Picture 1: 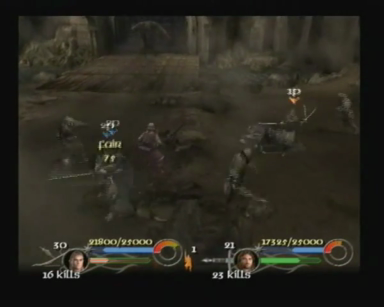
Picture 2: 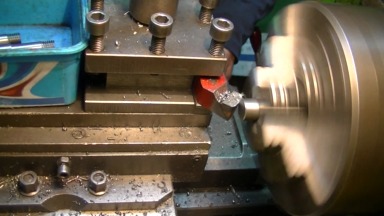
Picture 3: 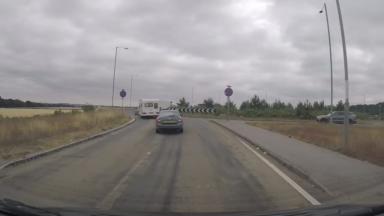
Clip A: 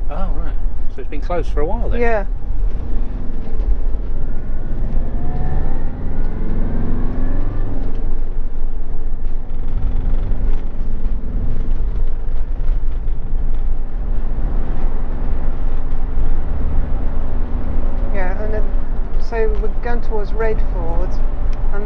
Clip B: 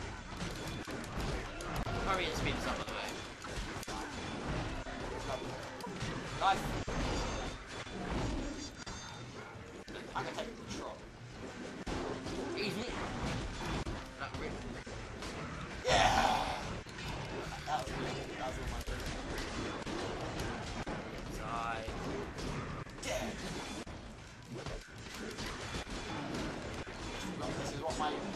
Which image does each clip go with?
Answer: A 3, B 1